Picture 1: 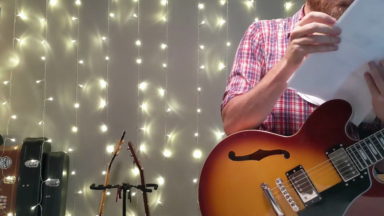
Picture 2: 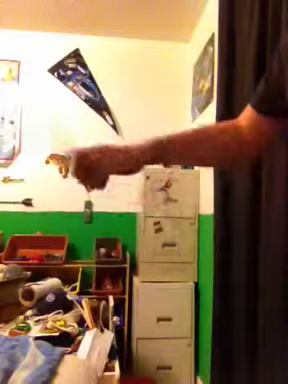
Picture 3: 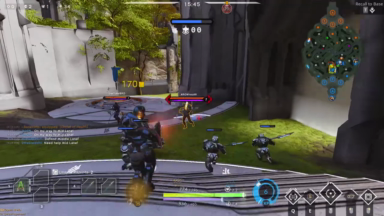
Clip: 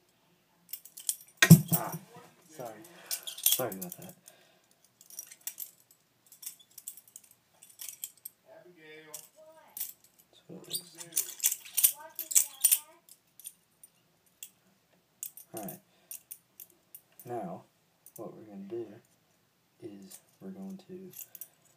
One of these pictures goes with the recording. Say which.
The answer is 2